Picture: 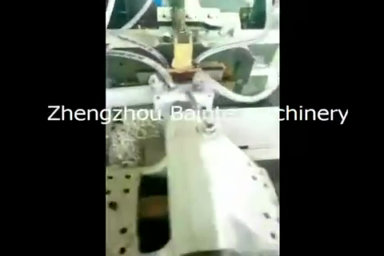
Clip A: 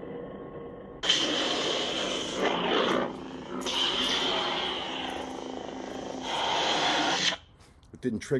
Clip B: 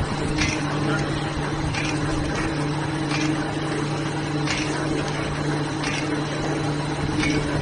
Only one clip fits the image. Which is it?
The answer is B